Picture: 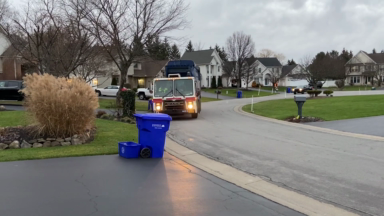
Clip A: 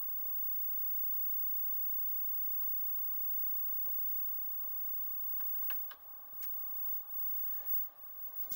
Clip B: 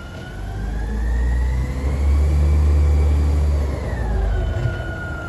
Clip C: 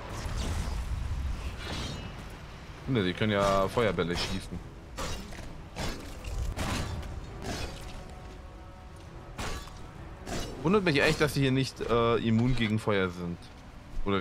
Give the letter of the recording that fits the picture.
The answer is B